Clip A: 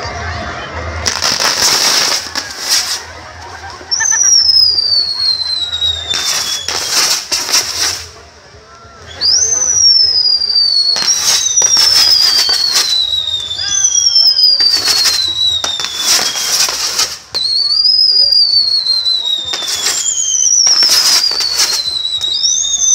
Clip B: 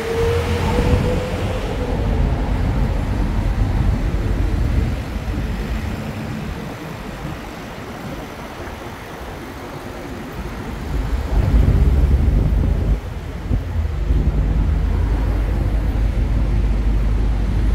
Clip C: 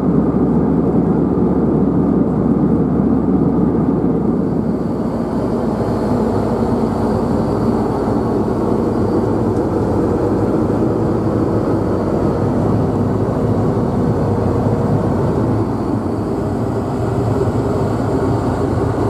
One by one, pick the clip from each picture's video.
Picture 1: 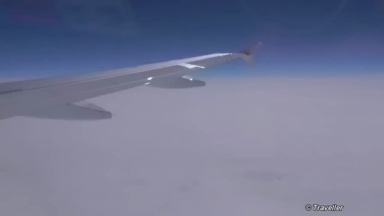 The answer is C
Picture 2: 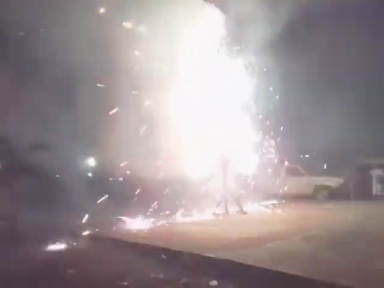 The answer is A